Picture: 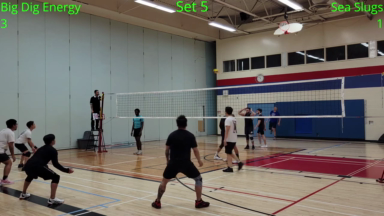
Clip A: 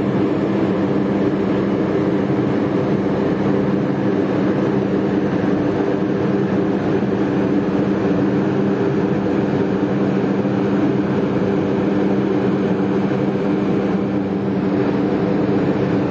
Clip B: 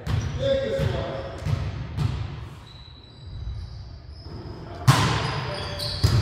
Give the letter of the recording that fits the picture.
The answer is B